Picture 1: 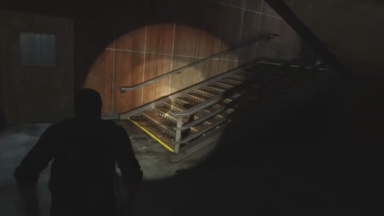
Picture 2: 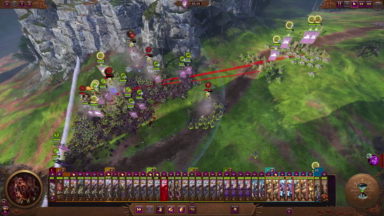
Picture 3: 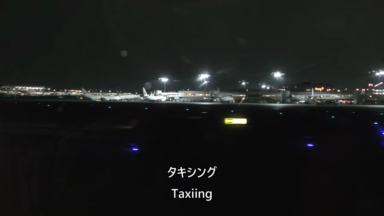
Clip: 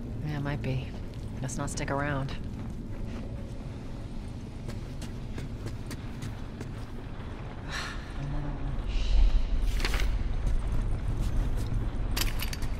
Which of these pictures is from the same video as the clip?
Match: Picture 1